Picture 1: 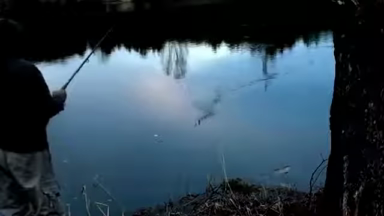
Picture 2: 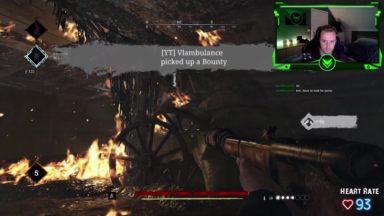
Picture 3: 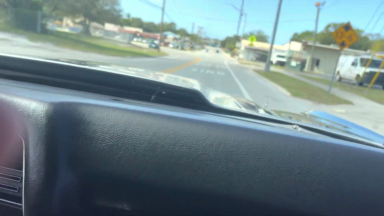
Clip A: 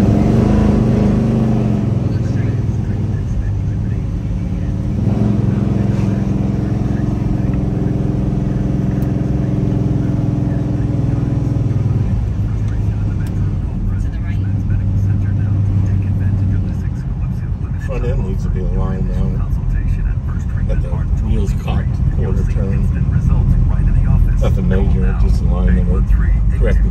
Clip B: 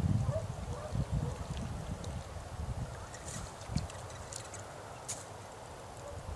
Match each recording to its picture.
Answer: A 3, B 1